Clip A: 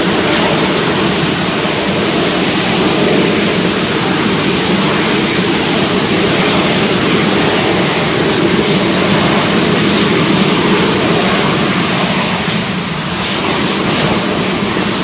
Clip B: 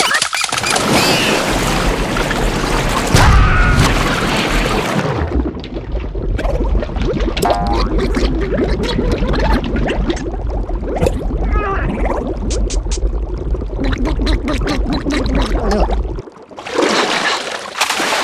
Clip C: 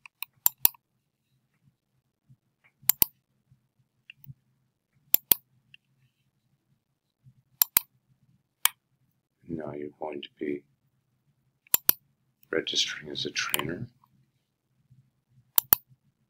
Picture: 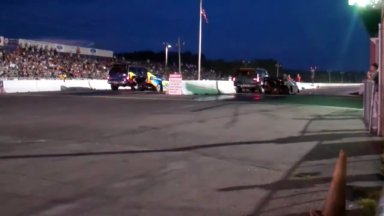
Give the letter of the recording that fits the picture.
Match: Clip A